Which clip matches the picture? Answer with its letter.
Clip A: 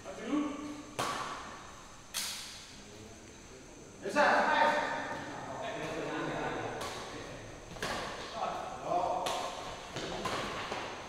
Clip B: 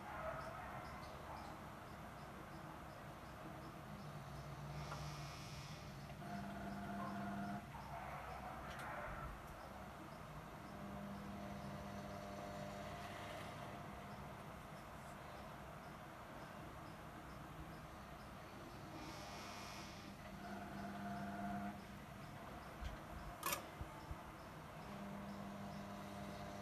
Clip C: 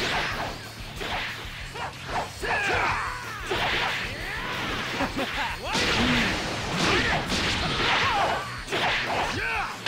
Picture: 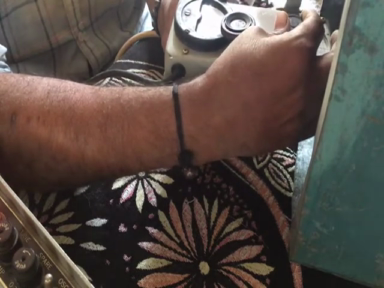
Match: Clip B